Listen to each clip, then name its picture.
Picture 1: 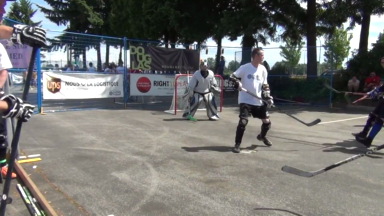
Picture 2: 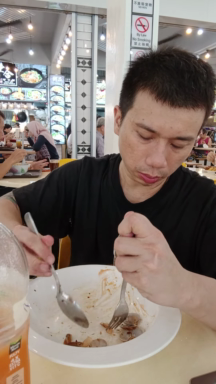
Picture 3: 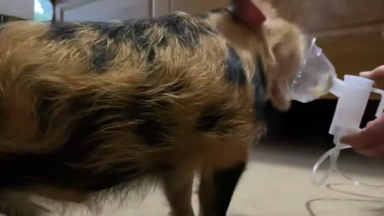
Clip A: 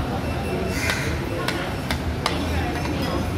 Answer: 2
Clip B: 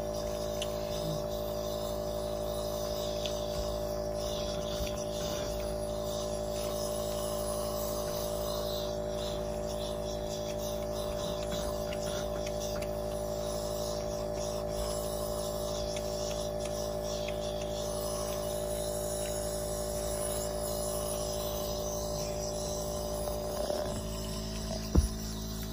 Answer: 3